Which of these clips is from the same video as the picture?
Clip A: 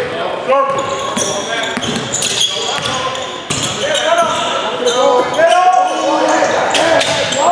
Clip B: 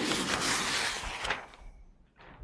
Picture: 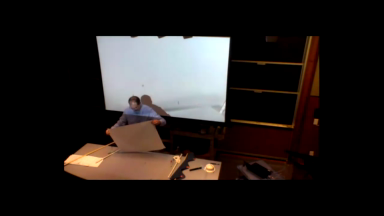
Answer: B